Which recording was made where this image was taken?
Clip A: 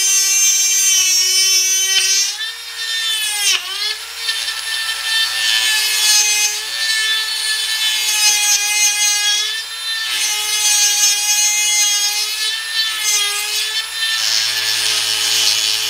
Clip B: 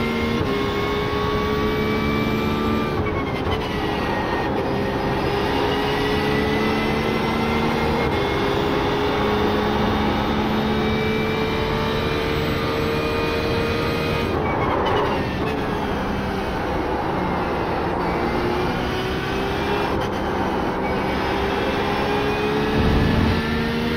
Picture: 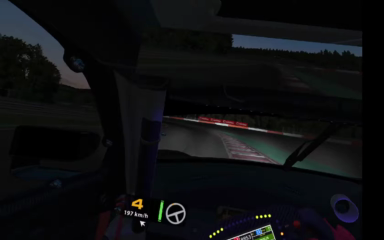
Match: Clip B